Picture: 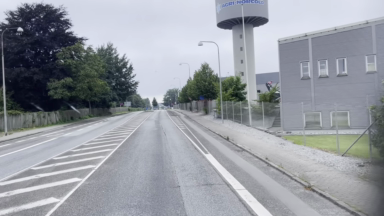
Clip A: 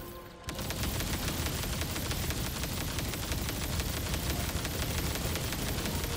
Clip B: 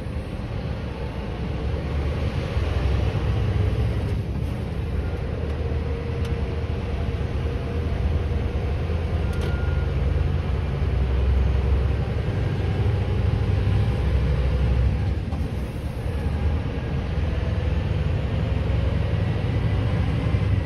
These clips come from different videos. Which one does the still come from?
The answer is B